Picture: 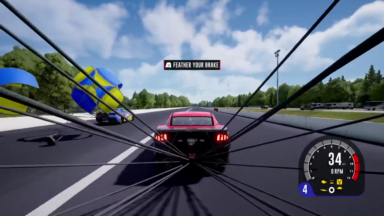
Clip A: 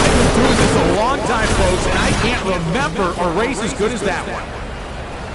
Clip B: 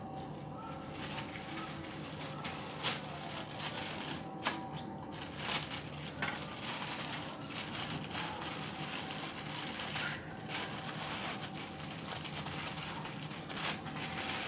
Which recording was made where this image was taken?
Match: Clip A